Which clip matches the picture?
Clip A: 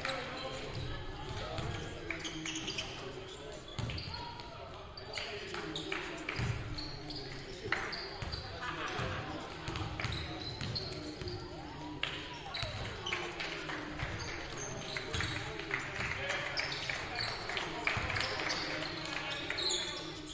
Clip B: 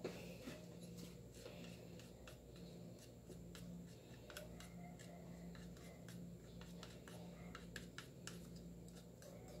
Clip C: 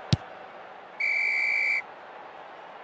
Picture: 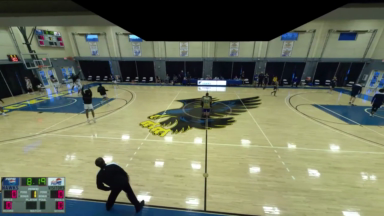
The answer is A